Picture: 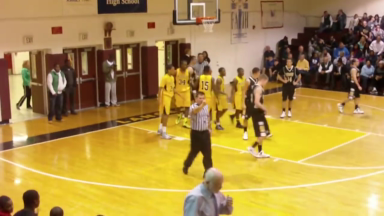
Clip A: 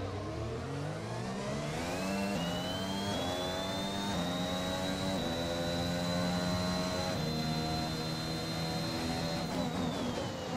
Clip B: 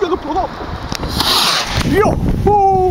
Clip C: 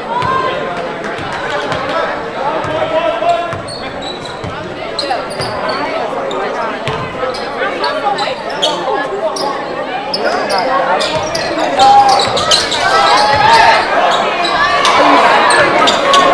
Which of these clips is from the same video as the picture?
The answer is C